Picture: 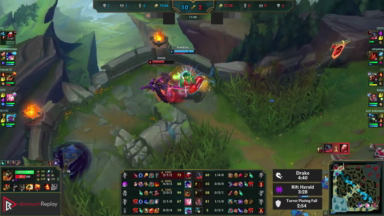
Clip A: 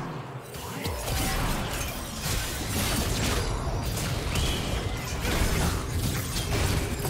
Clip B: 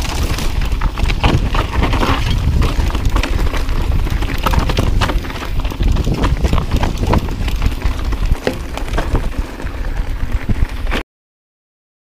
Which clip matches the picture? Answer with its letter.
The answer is A